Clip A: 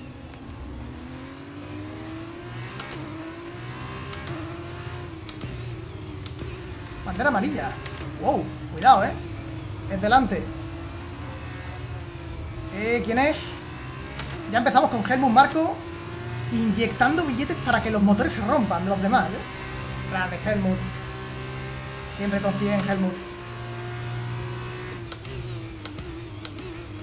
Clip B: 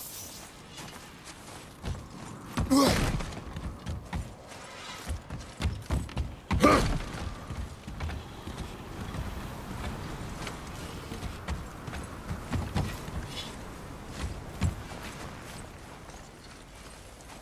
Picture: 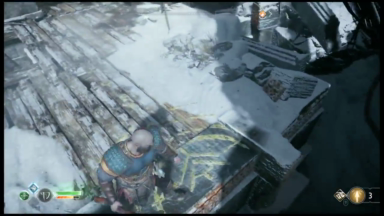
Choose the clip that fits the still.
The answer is B